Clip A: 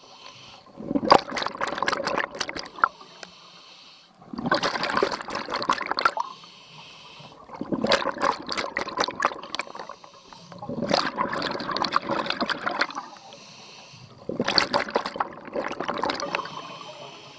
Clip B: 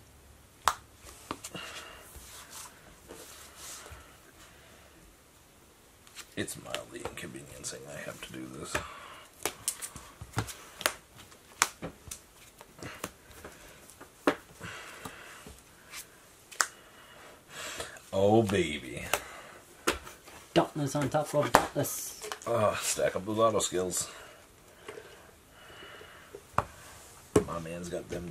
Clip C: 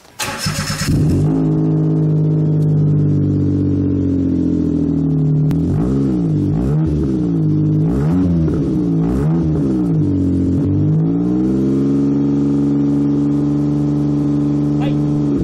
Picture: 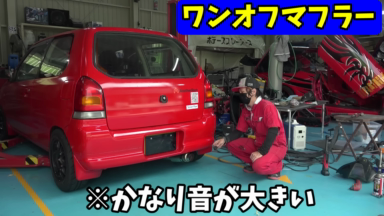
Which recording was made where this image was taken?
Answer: C